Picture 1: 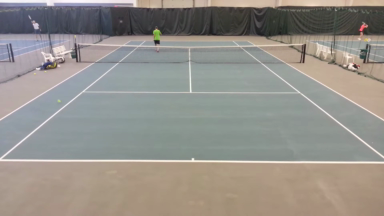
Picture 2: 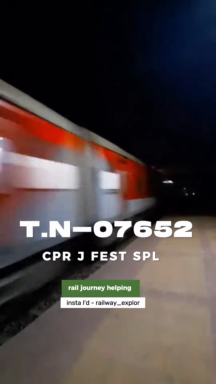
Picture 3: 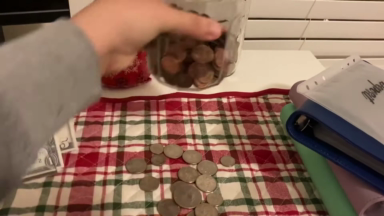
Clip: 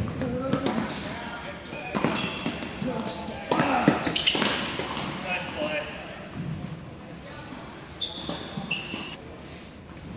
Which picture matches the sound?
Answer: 1